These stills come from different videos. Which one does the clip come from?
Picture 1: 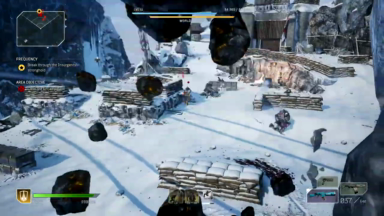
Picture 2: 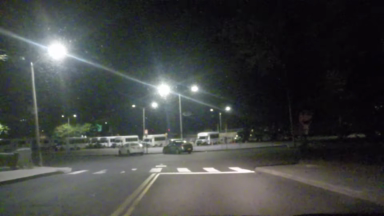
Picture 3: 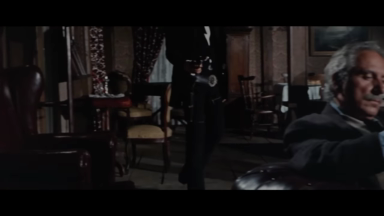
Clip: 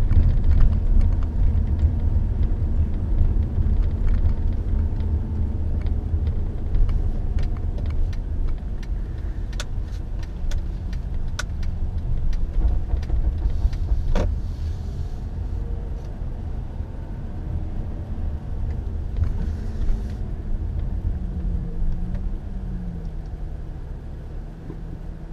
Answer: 2